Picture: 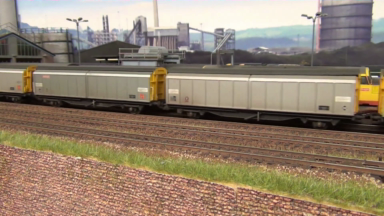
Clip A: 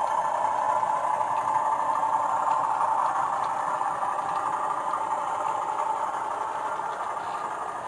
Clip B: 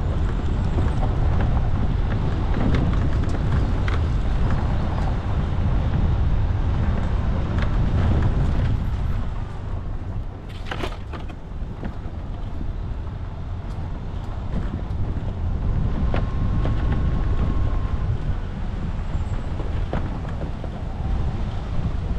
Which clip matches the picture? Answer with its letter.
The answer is A